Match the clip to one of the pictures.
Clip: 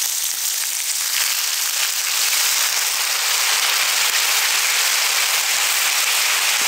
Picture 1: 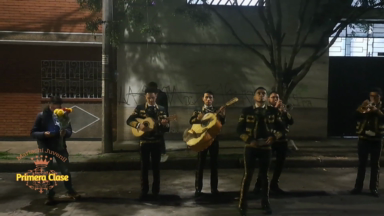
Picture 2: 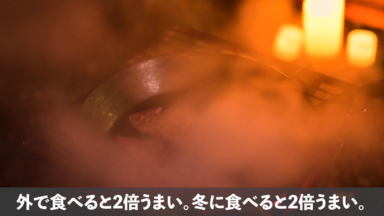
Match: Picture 2